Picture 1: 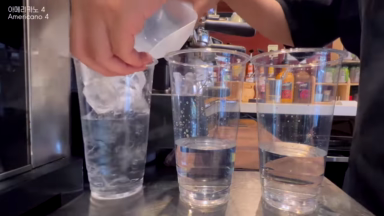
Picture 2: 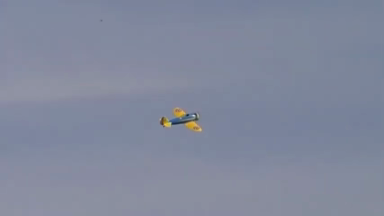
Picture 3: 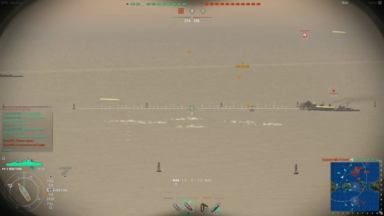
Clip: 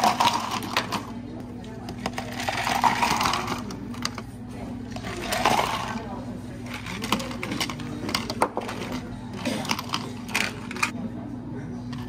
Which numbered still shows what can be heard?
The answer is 1